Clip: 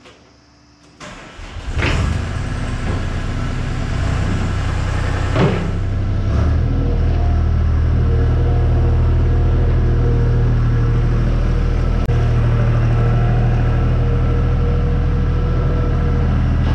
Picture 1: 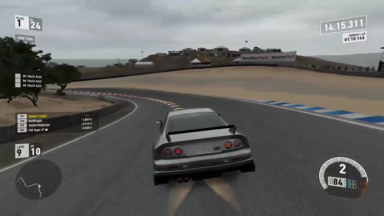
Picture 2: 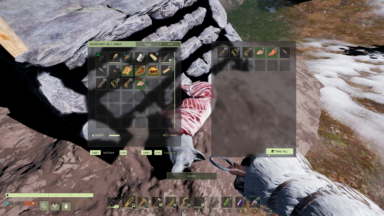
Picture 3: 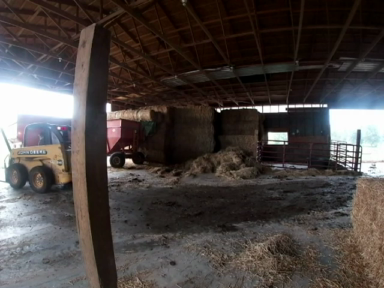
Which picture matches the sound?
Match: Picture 3